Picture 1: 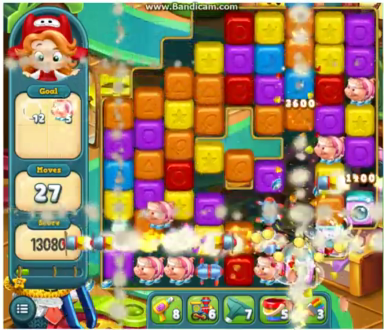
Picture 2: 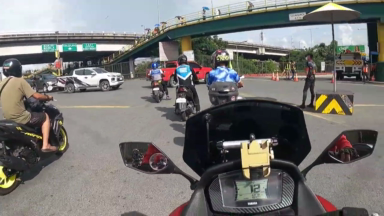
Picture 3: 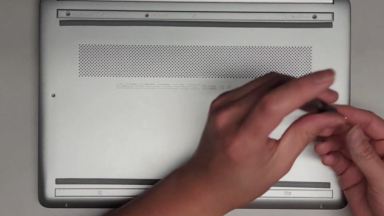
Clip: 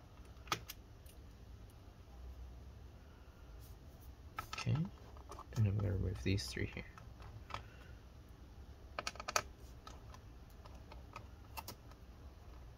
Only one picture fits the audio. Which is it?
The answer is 3